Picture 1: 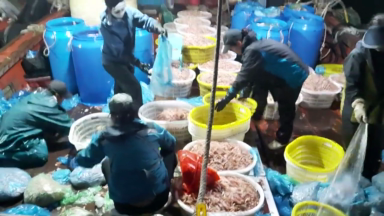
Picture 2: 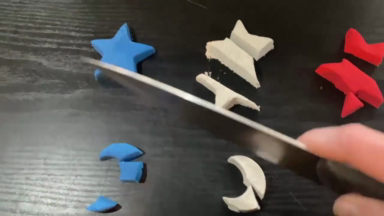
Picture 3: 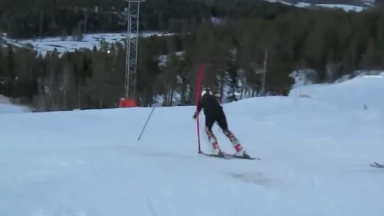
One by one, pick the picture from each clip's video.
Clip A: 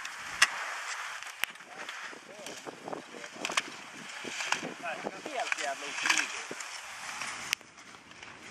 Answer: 3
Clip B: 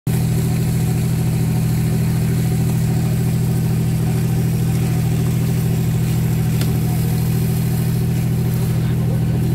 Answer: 1